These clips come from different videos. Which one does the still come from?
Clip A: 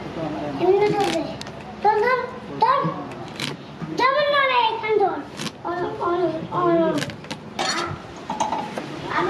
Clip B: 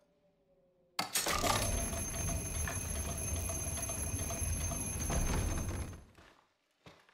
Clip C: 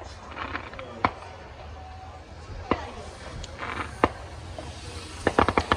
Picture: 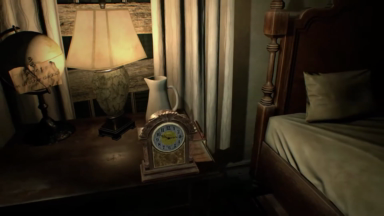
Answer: B